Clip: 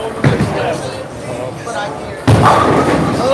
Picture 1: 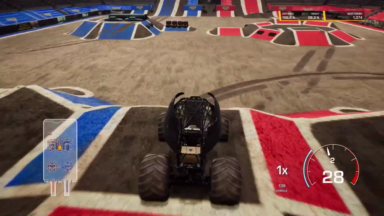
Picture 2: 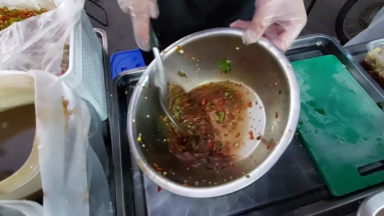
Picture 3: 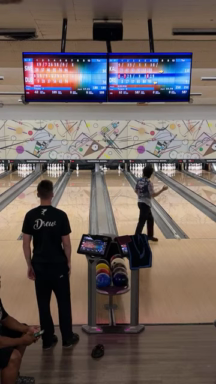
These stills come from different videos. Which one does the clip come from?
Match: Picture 3